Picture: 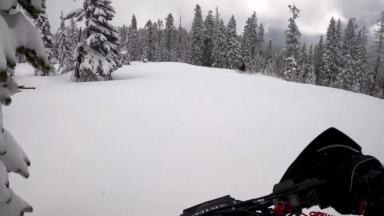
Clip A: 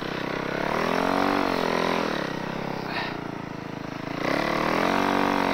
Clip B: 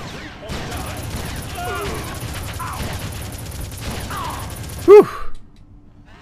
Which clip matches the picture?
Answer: A